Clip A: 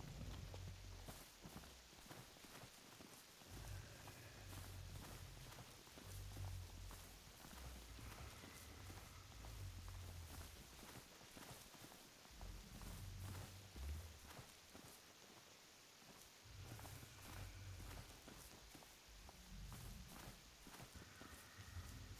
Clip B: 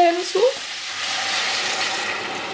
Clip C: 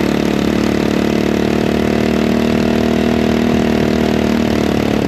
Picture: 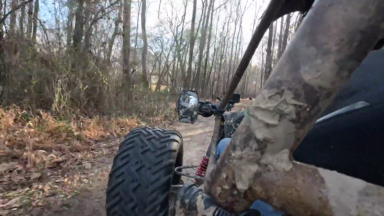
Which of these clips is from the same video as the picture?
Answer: C